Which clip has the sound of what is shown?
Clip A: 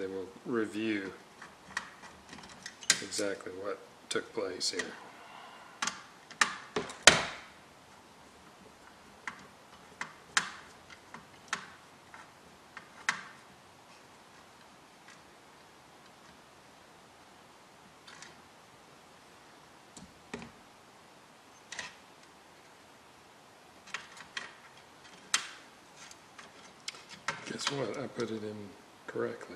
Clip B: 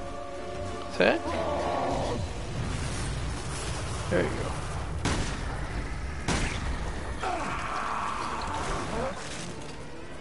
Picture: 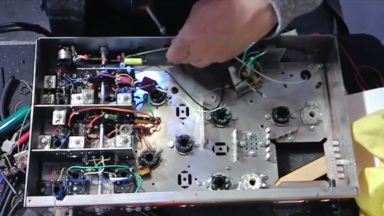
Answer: A